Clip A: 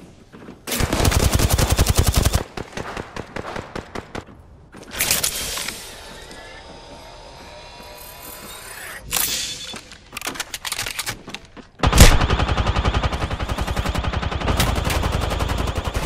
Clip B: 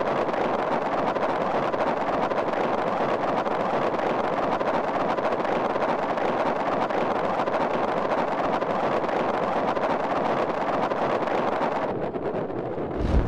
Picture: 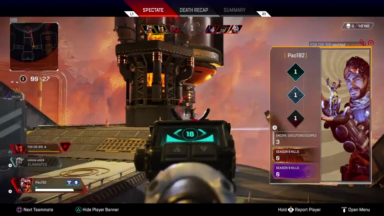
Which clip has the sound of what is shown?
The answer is A